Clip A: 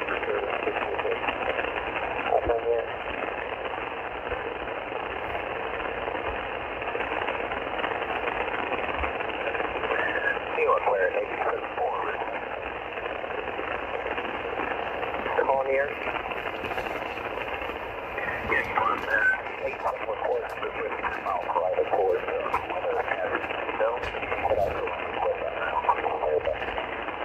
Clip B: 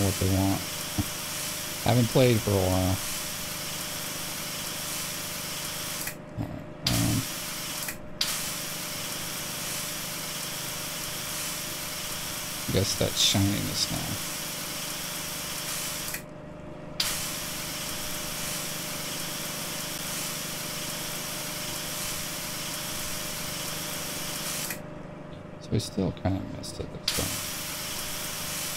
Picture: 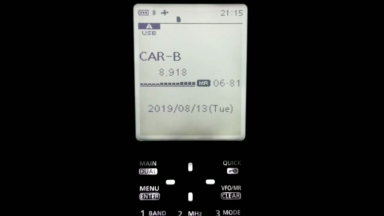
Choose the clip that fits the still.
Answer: A